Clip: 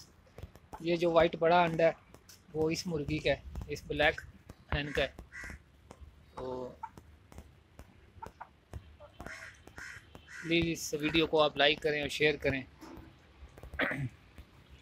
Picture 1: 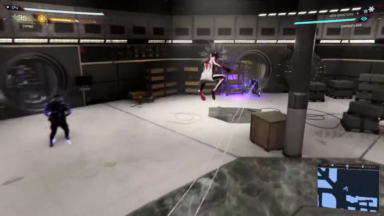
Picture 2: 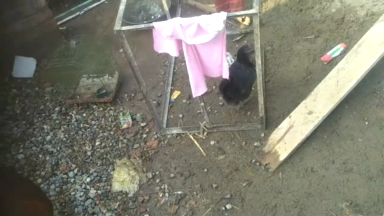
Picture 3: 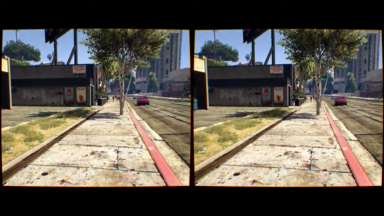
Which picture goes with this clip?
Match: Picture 2